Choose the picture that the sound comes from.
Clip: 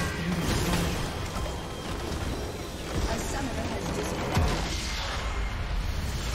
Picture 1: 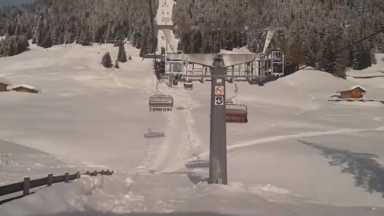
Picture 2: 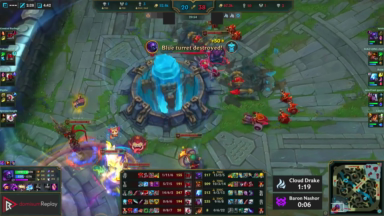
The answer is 2